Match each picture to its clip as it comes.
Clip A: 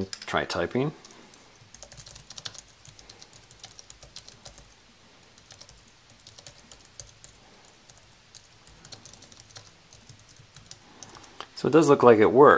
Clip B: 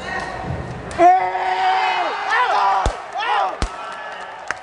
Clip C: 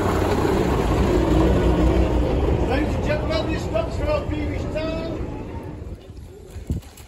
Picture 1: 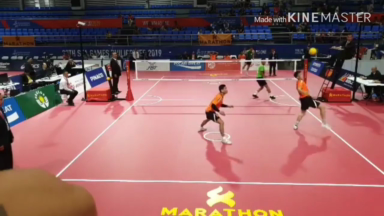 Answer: B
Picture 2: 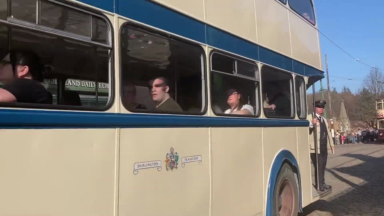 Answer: C